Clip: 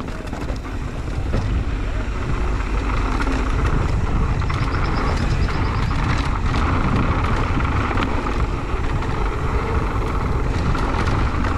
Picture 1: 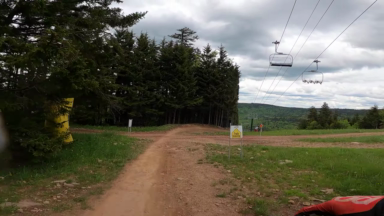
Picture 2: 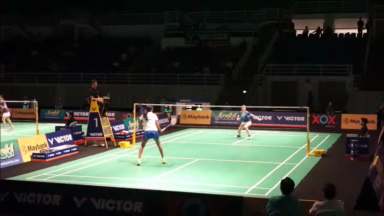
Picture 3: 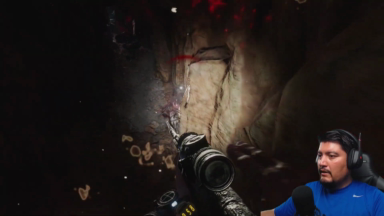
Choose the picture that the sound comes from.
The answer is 1